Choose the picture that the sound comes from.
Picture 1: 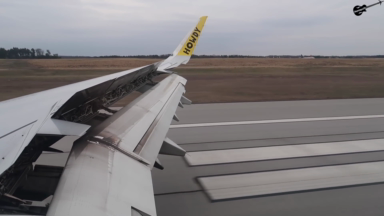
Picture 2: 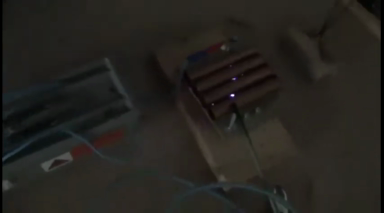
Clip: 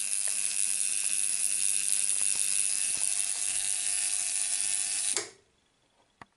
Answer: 2